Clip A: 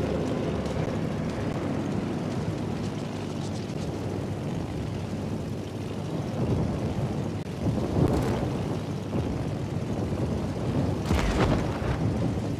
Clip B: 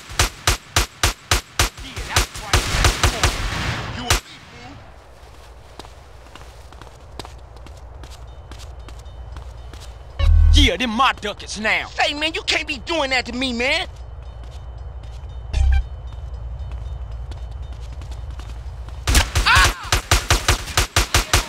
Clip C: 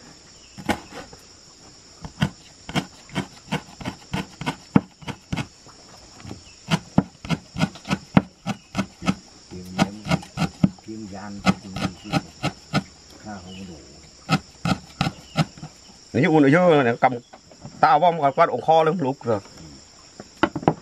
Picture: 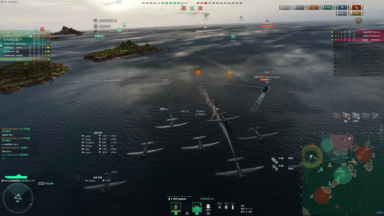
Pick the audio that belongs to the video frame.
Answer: A